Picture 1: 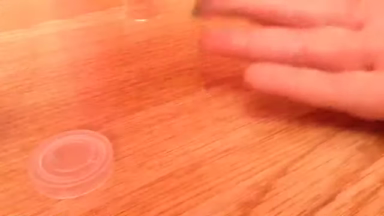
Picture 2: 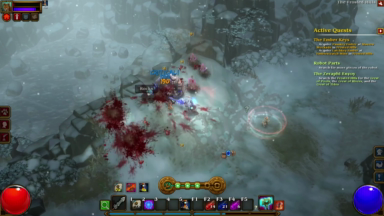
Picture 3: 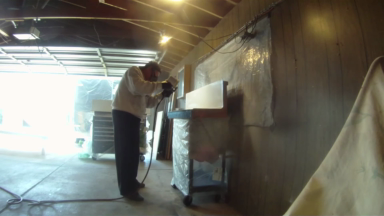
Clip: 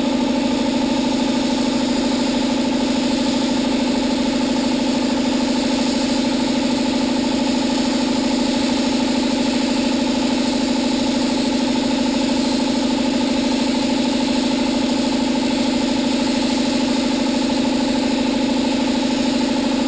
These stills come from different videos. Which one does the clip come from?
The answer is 3